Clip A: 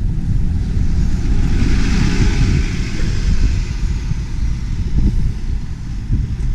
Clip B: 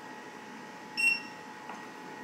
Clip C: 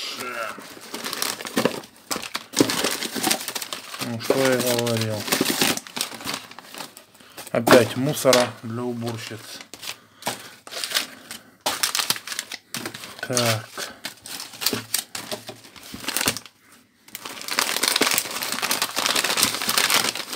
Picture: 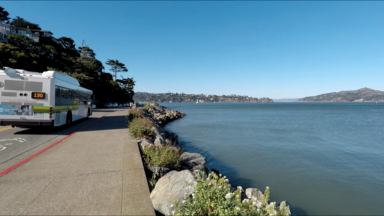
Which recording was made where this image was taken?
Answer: A